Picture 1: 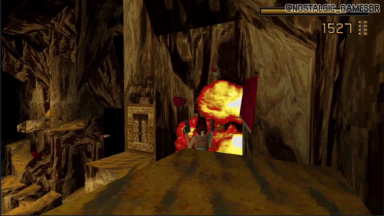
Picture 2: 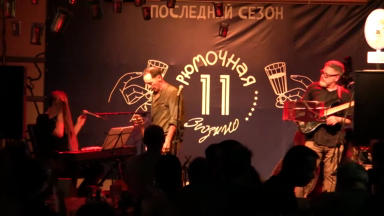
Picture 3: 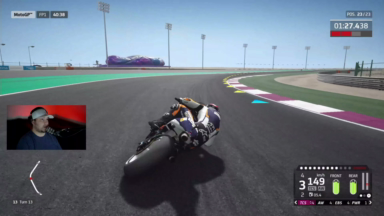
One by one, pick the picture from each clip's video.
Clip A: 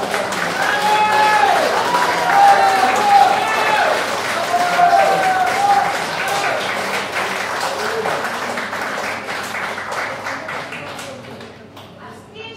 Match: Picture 2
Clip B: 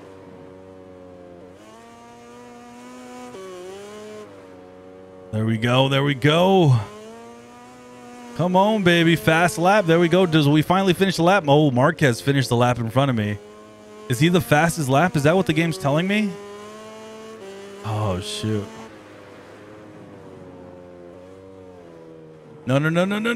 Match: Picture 3